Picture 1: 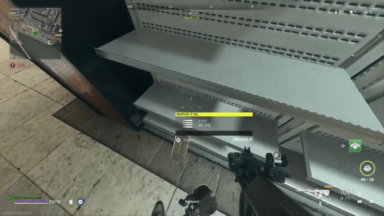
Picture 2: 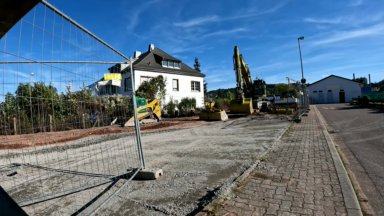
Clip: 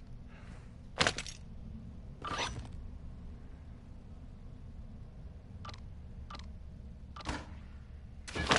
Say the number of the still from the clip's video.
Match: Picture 1